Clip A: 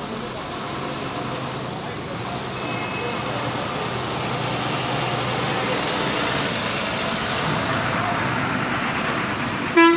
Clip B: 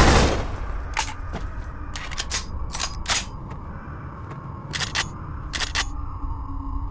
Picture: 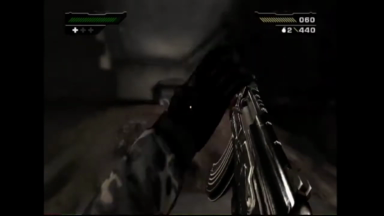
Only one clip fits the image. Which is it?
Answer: B